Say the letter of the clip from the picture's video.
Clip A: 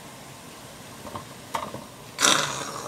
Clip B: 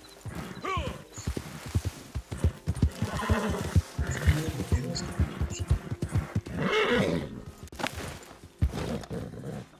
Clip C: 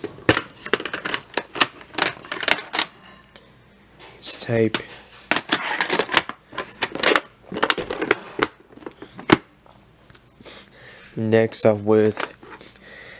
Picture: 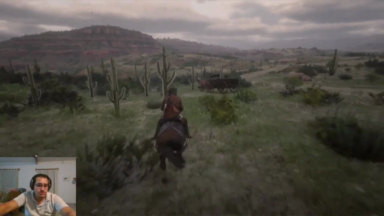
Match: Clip B